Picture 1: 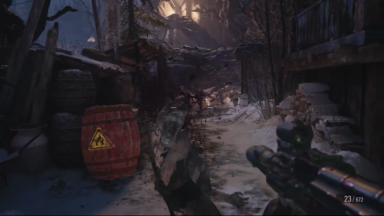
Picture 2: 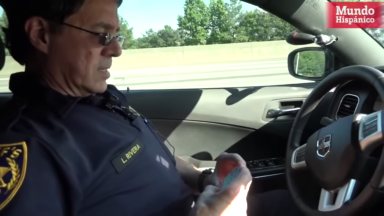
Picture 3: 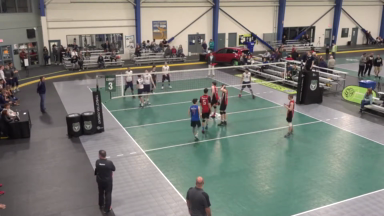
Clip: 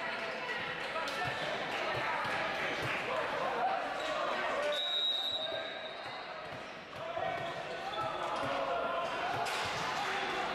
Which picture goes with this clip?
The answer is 3